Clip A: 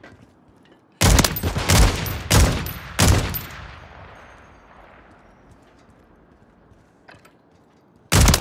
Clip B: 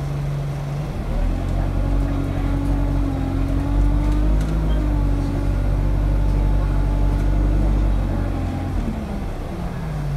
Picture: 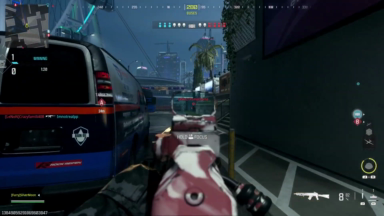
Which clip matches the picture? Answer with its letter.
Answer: A